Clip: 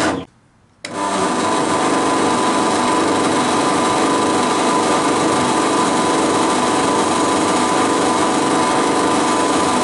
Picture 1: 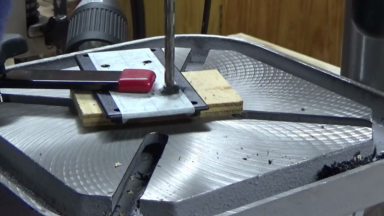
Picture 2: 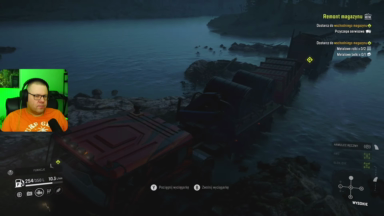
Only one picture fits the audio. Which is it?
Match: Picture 1